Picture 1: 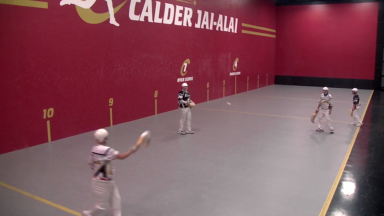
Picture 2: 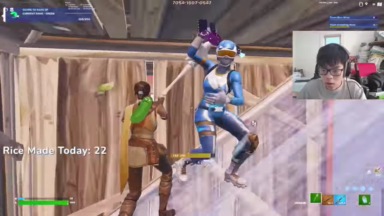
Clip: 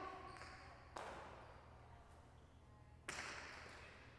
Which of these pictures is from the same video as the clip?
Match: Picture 1